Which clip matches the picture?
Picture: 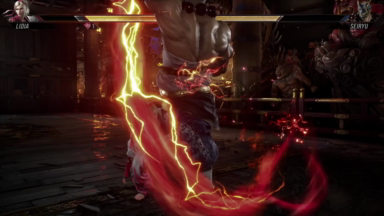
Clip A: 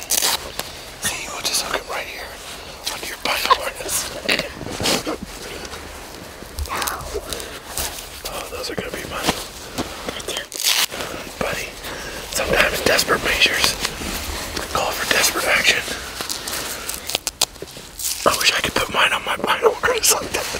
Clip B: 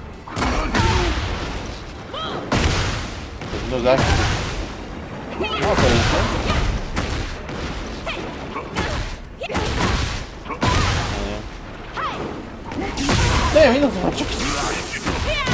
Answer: B